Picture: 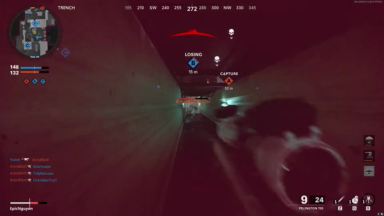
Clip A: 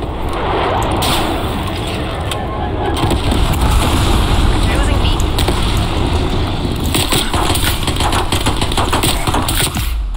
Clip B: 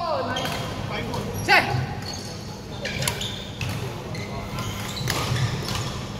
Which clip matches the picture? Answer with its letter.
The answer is A